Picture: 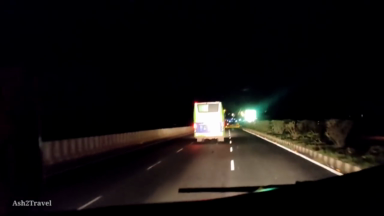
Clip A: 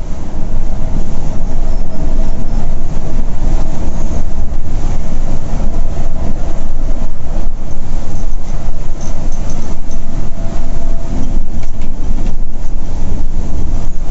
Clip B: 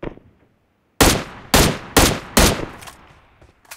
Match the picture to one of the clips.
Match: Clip A